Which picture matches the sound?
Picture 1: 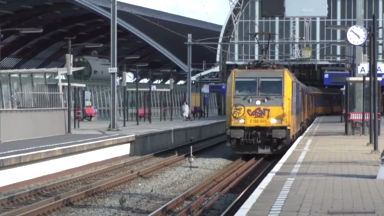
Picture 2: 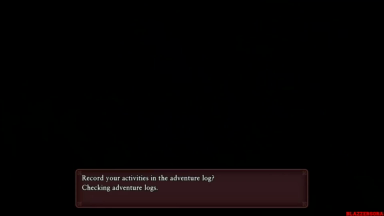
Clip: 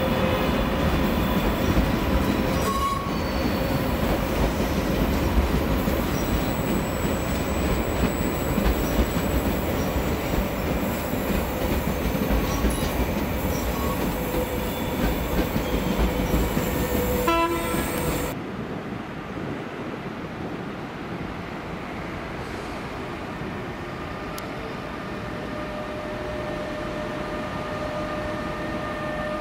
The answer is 1